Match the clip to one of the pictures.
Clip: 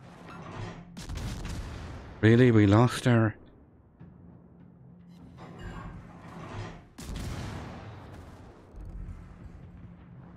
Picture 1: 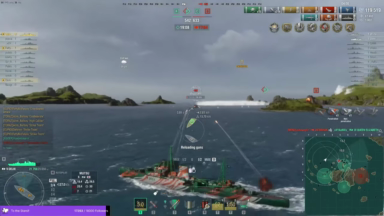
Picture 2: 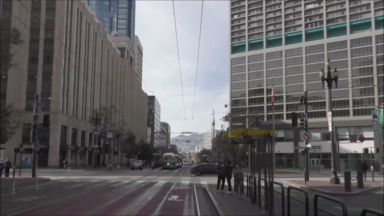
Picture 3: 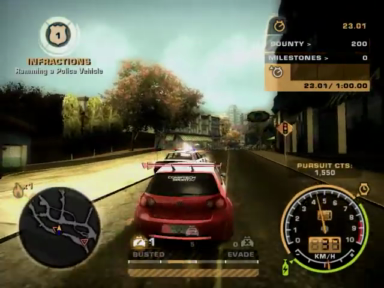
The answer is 1